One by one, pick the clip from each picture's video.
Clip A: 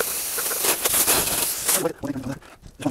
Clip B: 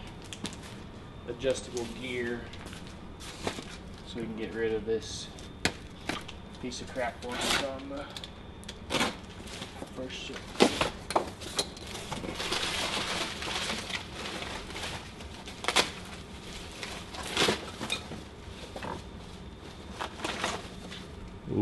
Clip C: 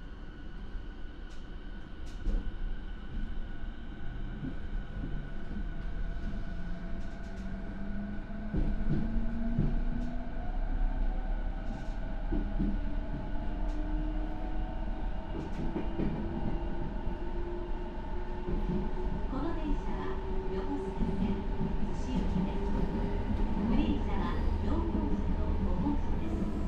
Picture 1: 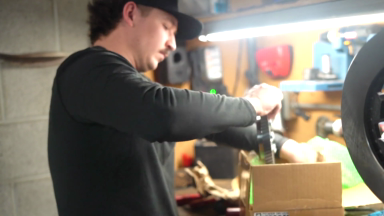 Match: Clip B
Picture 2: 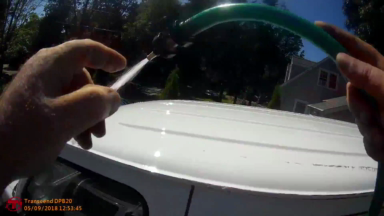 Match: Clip A